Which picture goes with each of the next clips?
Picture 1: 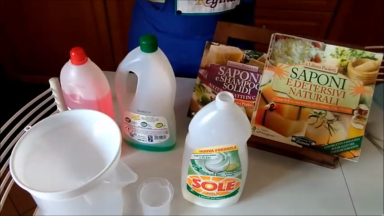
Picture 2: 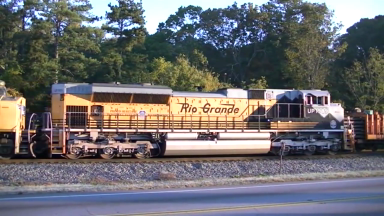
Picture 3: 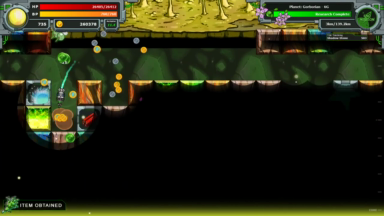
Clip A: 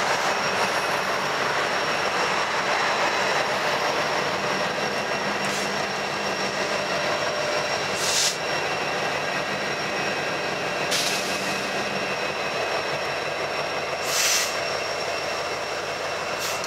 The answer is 2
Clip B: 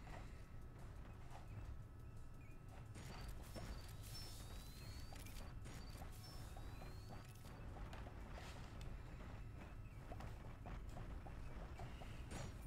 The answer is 3